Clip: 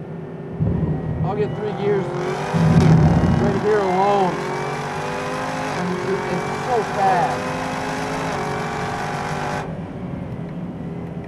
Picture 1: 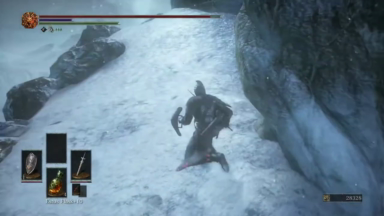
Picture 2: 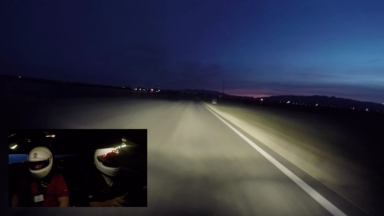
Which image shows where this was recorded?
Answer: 2